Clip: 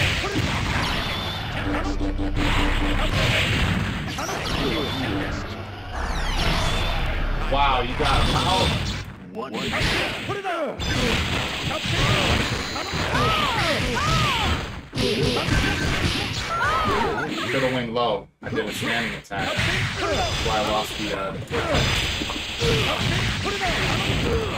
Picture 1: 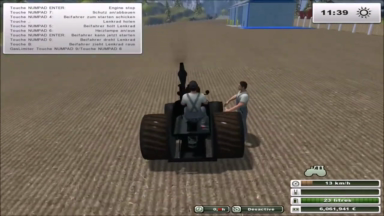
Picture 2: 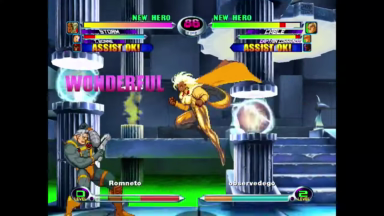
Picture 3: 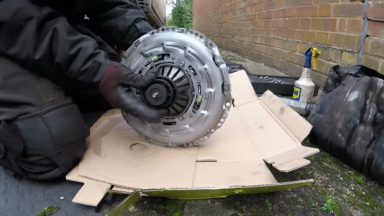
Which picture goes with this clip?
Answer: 2